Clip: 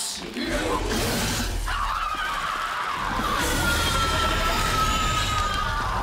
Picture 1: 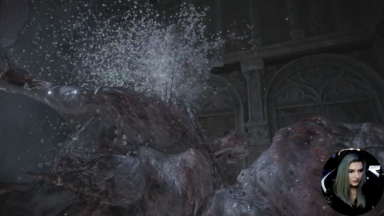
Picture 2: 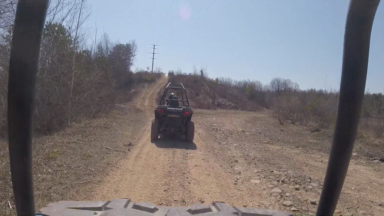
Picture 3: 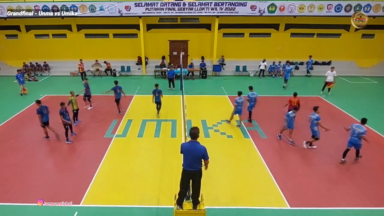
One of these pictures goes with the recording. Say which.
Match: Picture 1